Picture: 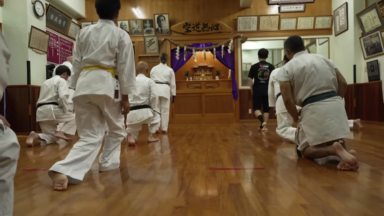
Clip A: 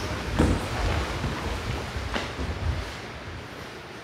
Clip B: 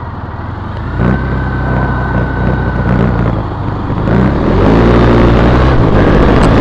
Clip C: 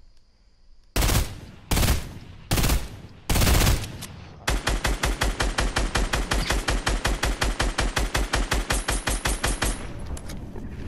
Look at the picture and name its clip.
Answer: A